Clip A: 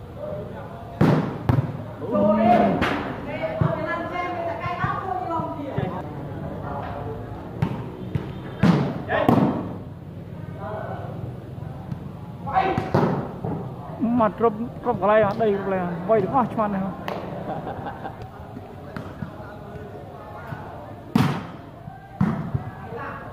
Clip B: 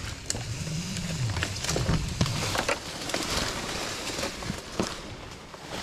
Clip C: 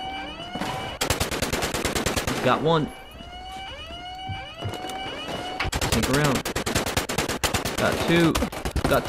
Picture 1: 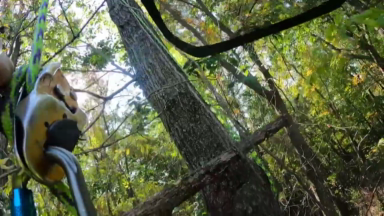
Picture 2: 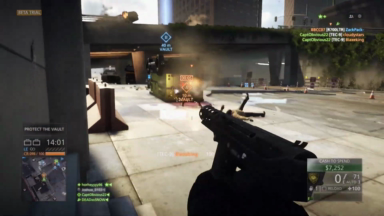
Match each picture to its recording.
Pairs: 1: B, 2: C